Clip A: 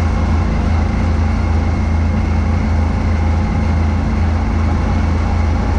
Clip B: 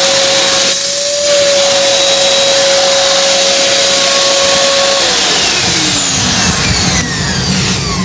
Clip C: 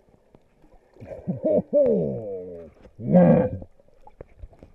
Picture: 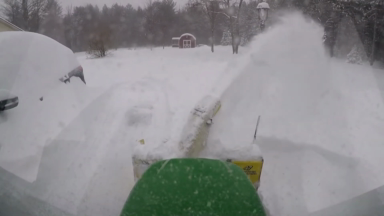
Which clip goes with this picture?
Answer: A